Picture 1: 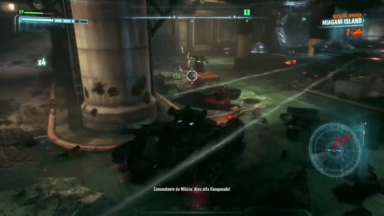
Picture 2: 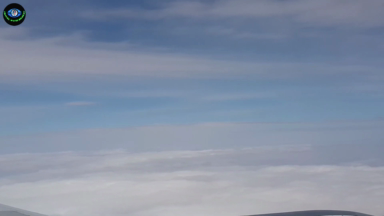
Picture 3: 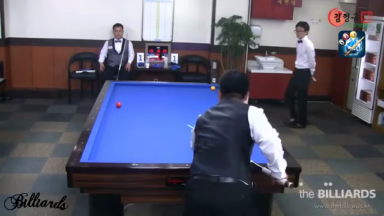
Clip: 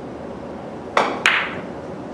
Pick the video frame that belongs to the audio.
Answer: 3